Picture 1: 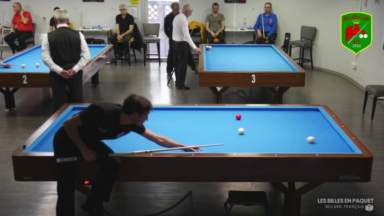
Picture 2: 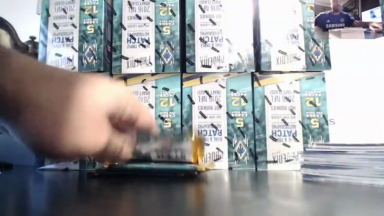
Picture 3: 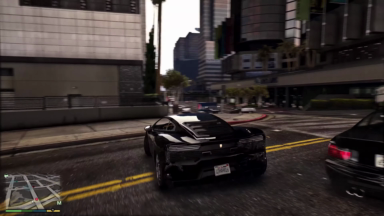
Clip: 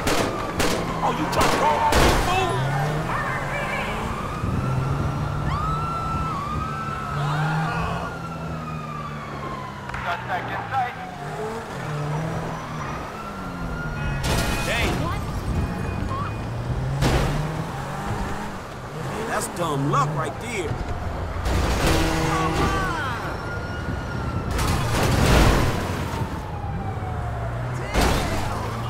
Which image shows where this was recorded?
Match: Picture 3